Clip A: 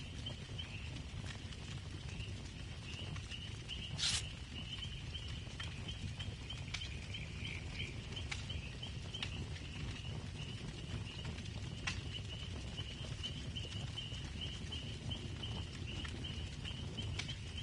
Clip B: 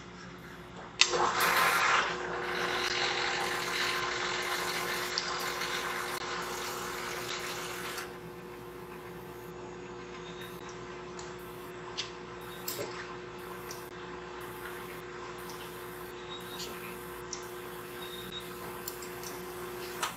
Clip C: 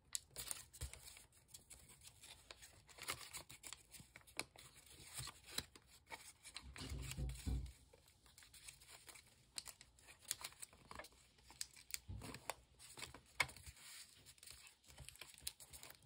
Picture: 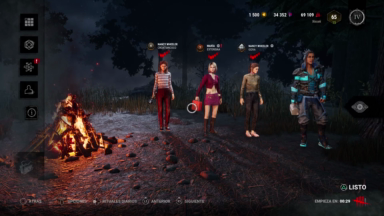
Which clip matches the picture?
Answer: A